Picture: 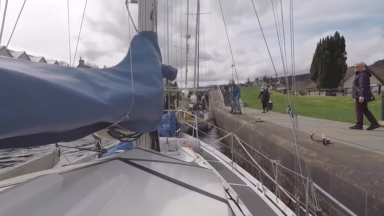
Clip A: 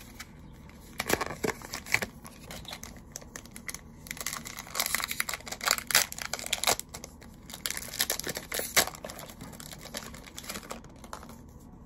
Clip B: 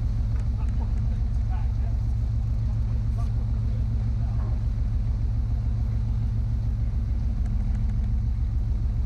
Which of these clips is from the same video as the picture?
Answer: B